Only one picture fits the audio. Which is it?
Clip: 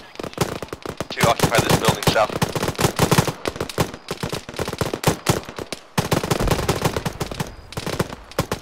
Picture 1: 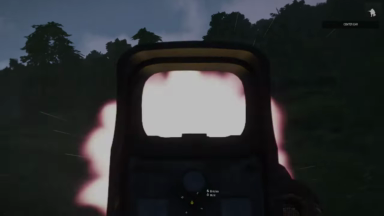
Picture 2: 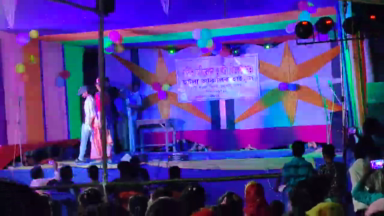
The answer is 1